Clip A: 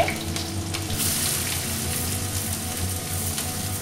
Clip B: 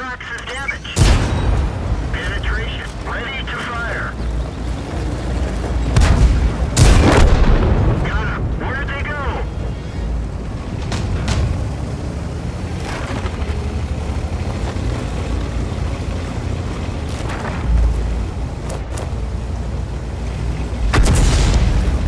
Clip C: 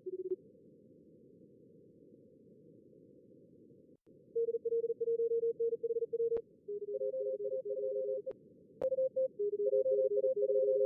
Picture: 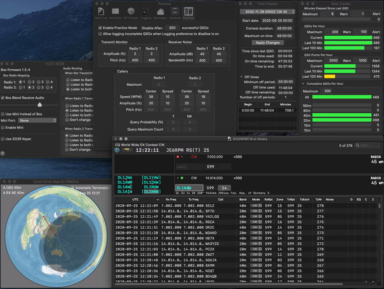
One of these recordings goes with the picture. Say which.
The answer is C